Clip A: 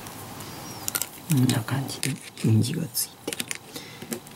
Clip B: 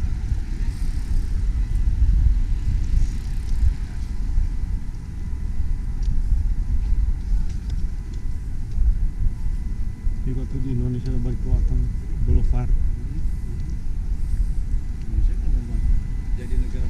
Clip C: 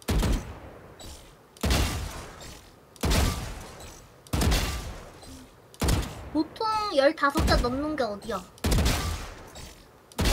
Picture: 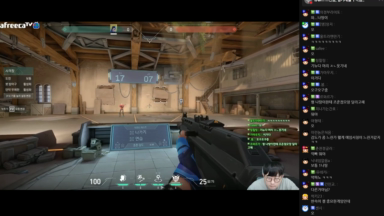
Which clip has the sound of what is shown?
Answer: C